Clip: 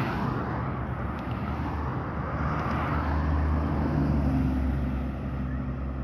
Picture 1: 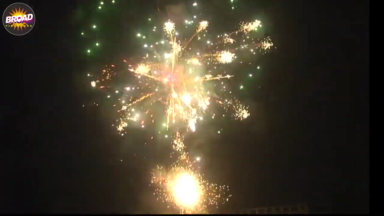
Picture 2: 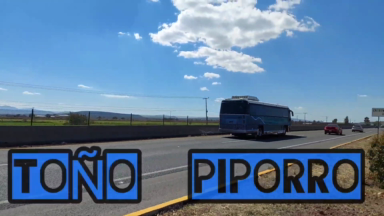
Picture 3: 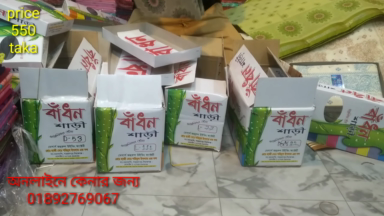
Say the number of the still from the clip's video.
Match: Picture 2